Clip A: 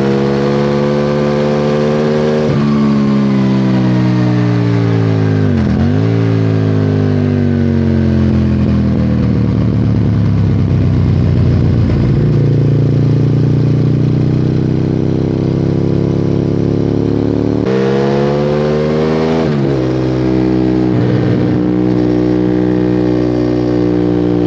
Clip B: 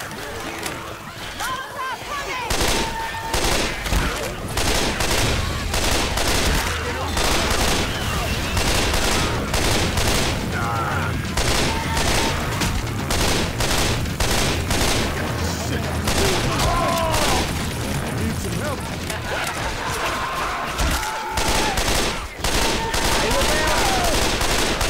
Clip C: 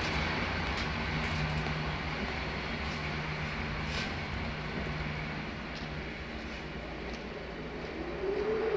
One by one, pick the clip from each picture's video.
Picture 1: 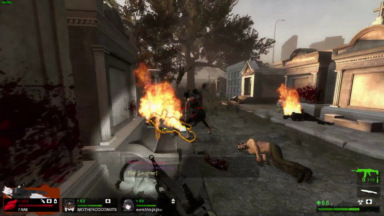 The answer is B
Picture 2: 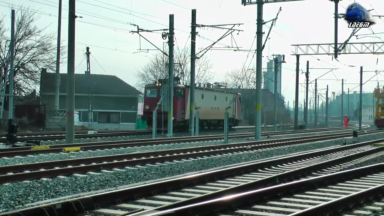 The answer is C